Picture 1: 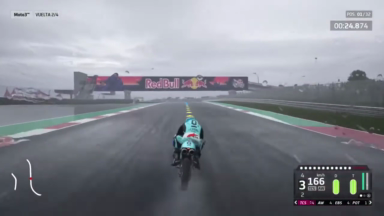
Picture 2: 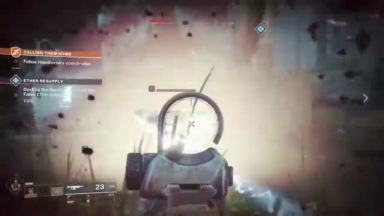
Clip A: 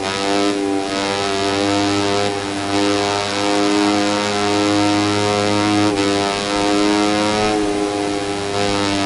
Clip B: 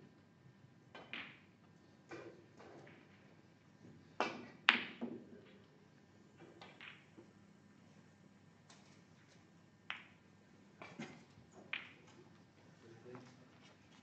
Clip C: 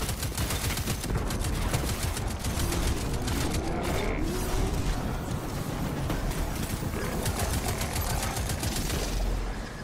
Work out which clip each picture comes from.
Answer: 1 A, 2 C